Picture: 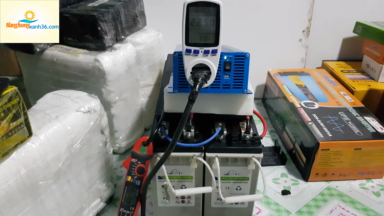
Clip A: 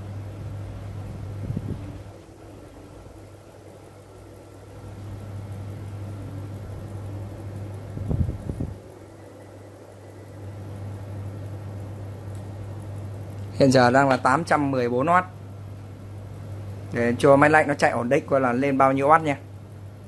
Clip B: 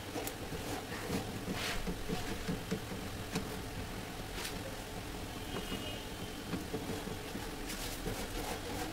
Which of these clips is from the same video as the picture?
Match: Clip A